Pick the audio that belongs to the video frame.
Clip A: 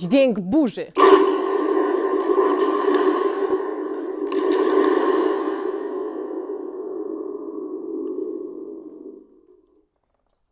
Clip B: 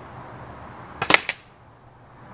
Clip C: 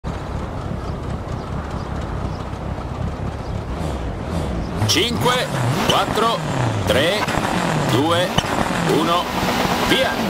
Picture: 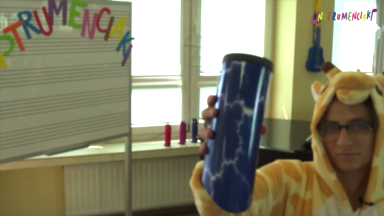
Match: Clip A